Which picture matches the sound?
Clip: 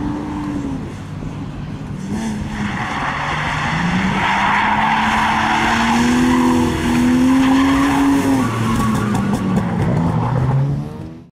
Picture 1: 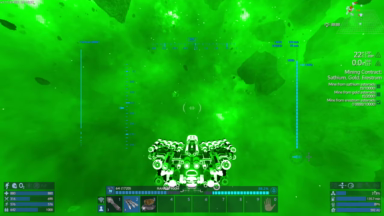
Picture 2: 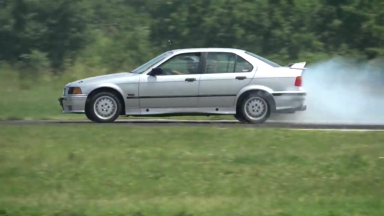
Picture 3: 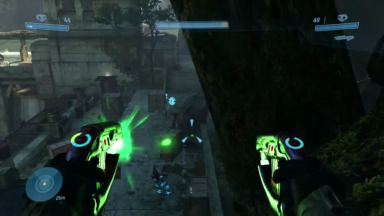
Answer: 2